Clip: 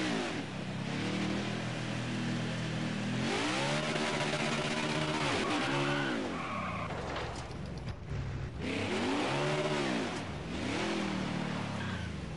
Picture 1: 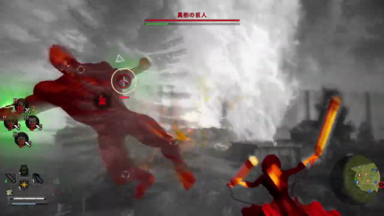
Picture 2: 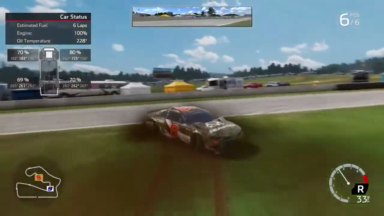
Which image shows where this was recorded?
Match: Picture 2